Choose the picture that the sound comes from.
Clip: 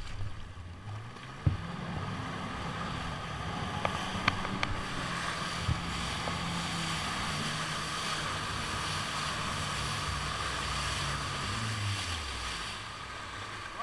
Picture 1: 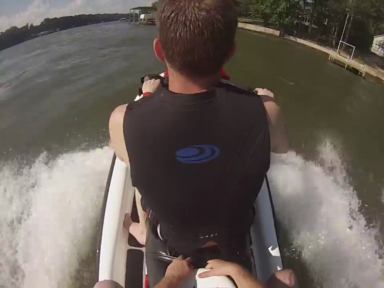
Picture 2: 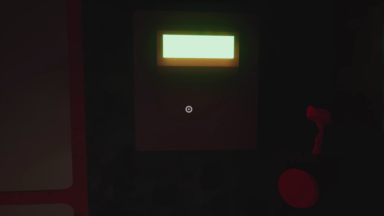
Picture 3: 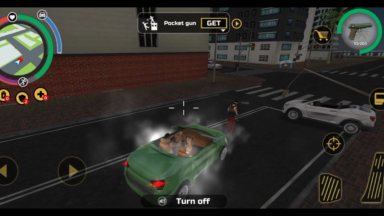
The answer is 1